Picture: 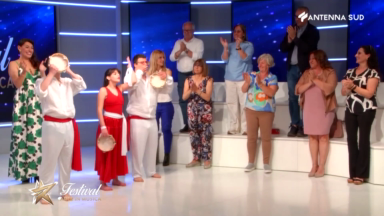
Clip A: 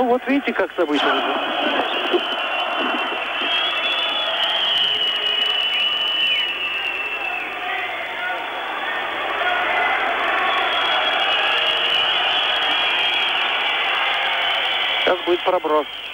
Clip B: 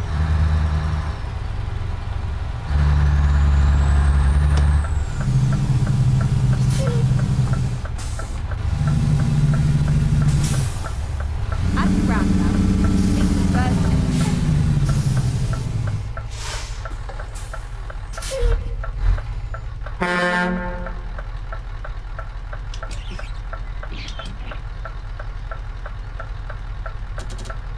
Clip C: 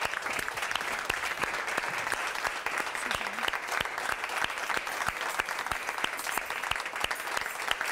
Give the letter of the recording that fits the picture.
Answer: C